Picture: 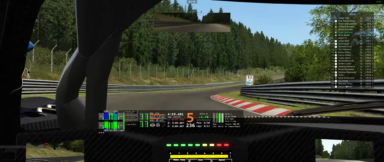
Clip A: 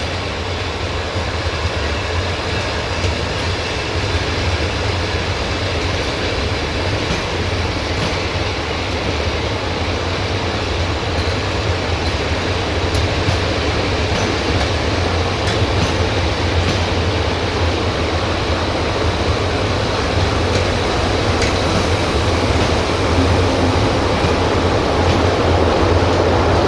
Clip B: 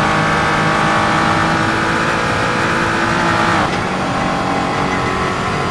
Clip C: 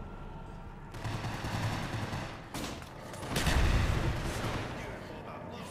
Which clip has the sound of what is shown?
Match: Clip B